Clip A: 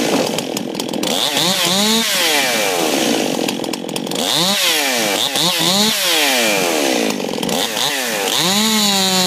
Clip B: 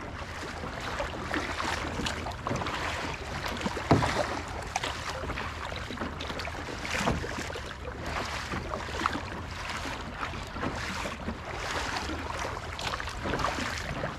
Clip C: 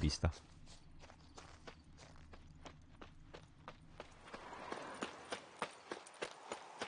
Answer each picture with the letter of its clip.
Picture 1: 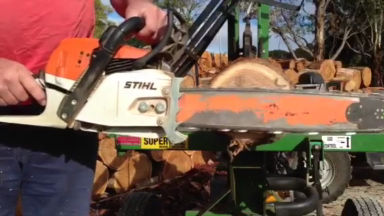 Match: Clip A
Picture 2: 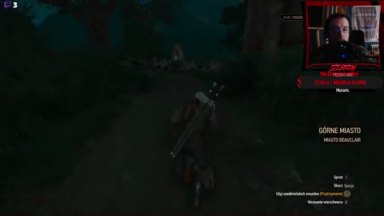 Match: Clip C